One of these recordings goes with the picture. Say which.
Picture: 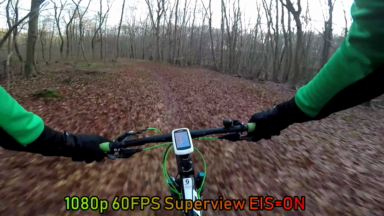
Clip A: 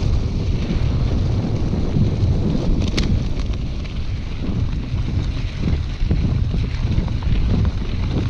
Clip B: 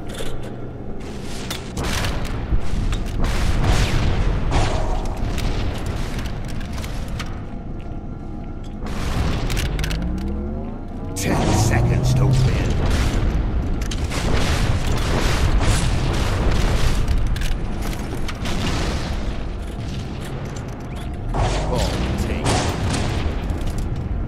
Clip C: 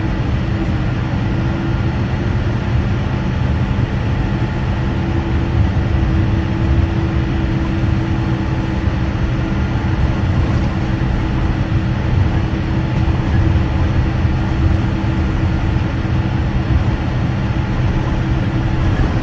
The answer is A